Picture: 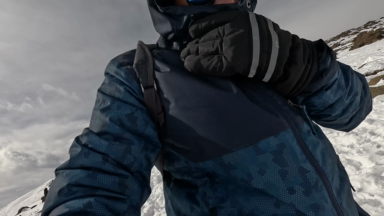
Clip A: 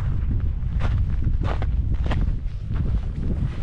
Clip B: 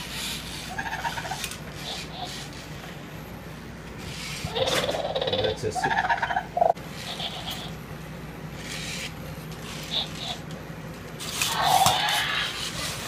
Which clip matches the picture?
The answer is A